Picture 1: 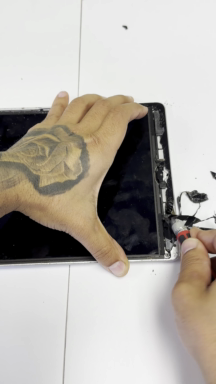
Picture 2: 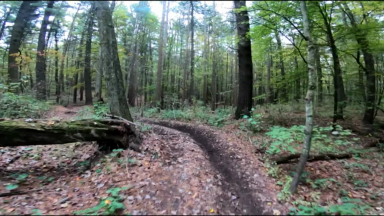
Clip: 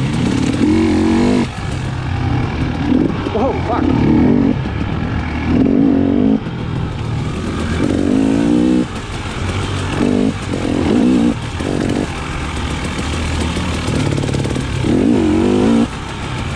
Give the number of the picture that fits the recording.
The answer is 2